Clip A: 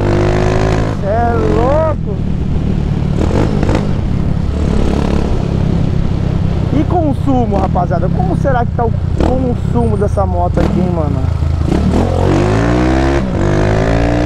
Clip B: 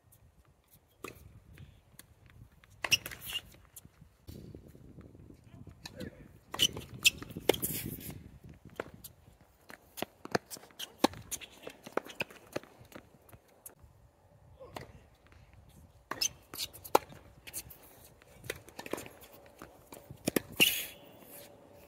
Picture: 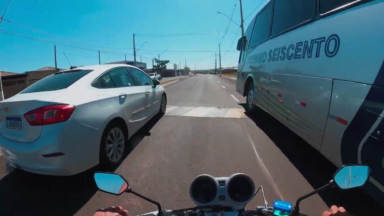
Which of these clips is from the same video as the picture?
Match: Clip A